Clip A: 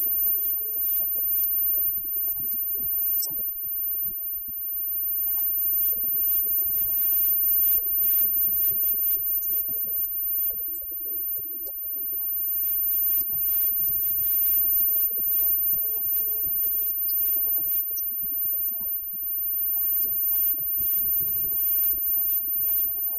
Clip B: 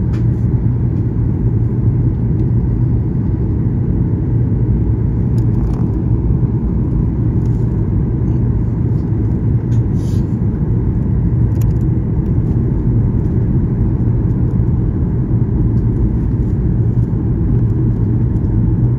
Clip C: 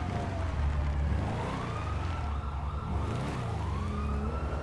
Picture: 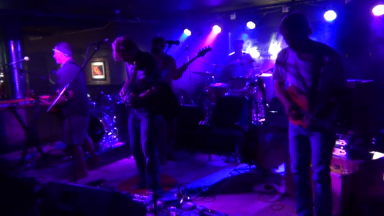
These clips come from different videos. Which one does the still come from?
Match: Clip A